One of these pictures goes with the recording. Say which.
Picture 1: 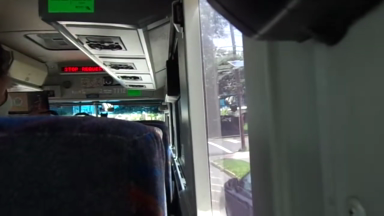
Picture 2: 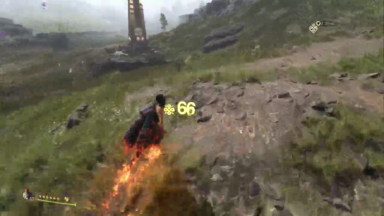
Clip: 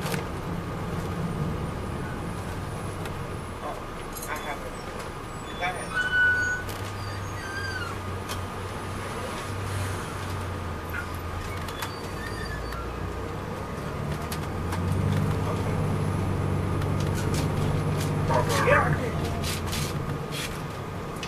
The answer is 1